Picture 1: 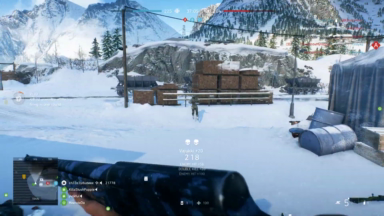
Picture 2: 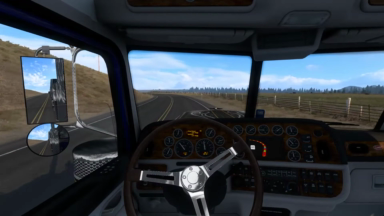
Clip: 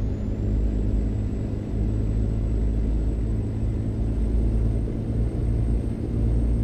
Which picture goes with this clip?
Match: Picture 2